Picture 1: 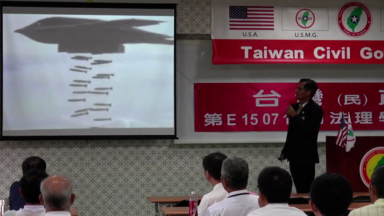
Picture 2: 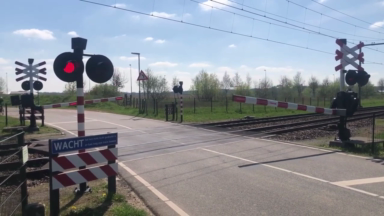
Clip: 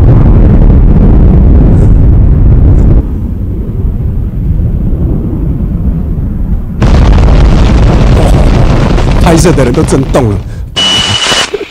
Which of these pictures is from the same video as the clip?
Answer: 1